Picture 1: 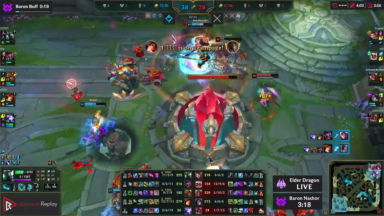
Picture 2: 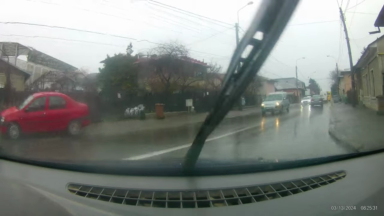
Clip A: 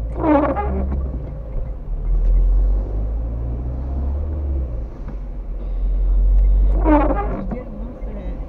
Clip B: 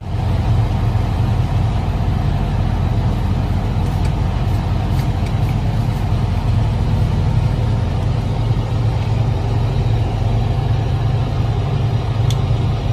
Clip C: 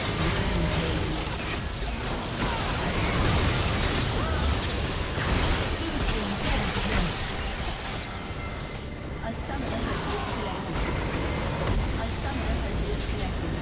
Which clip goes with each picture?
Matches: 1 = C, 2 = A